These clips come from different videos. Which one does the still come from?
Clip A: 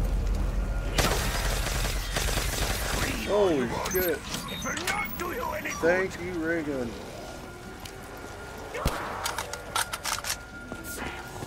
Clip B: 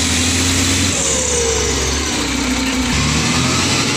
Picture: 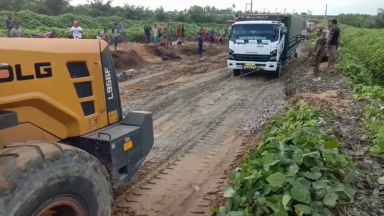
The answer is B